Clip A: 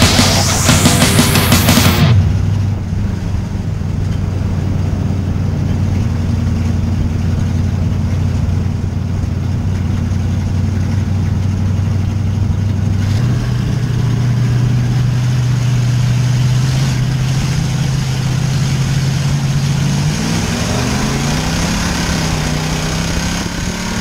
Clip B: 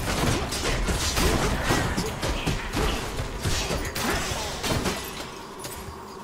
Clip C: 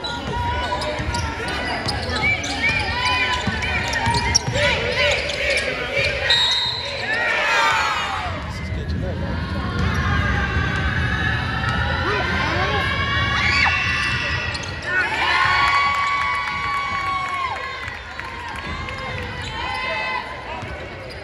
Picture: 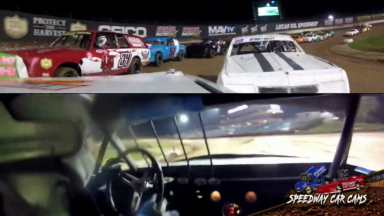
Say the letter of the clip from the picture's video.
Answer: A